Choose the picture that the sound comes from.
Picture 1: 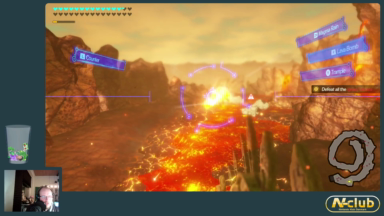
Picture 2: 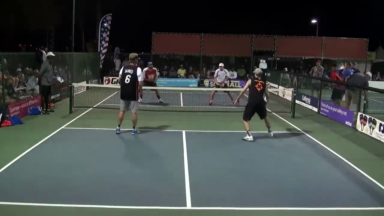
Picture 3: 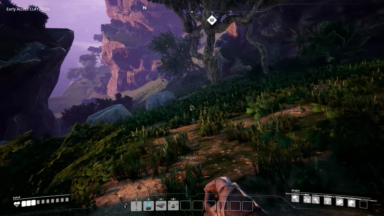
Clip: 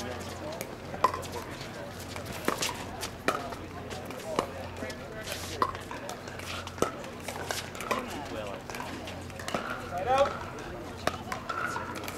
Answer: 2